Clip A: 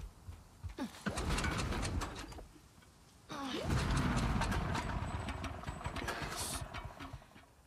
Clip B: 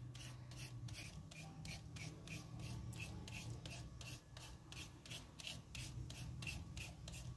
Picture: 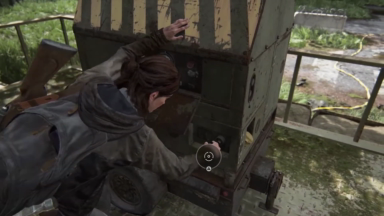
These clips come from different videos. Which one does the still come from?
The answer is A